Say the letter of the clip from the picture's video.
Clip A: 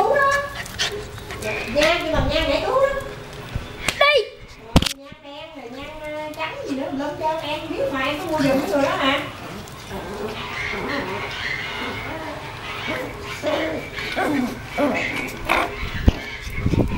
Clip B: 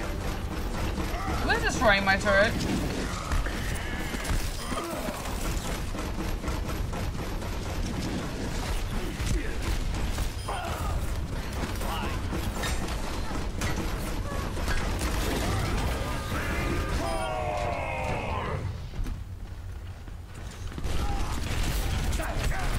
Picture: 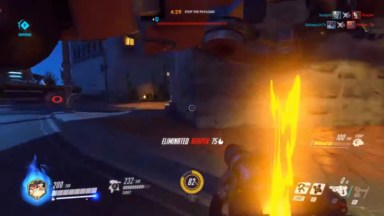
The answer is B